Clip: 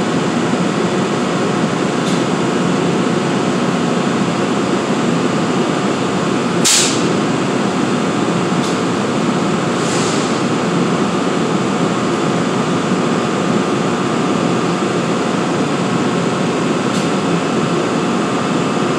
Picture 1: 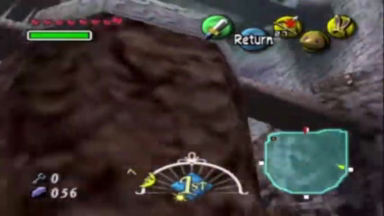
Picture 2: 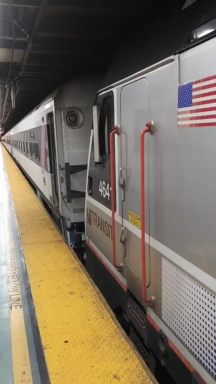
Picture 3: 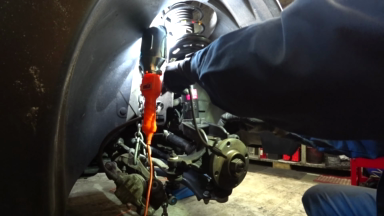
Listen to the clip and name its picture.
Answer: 2